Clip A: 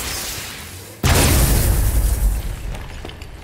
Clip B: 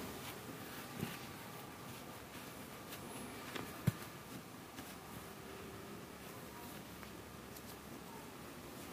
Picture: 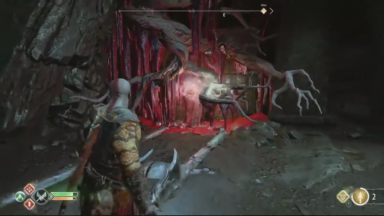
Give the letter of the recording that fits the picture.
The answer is A